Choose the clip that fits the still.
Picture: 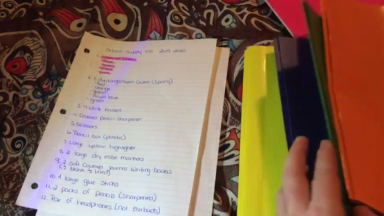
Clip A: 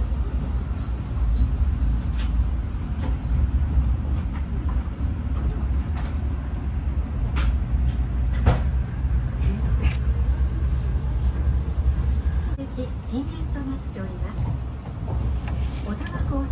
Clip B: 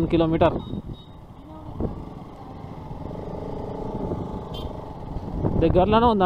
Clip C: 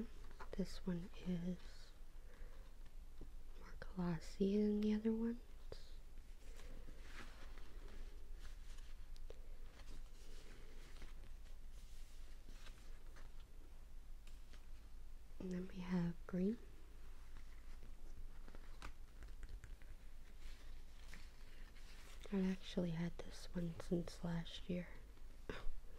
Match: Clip C